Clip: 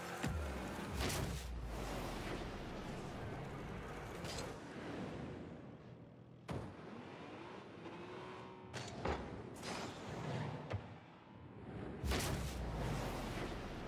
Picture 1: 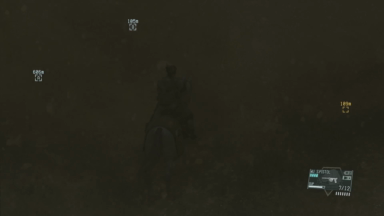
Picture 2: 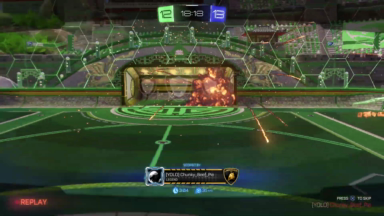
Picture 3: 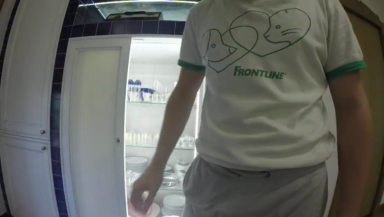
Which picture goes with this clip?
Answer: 2